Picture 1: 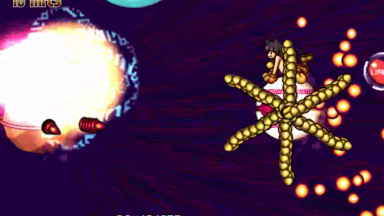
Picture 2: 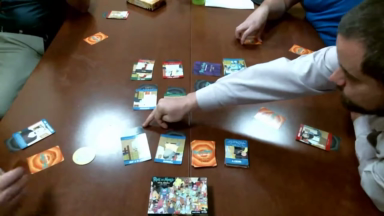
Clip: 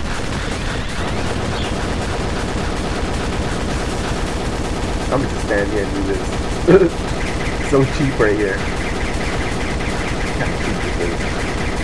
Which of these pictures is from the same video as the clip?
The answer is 1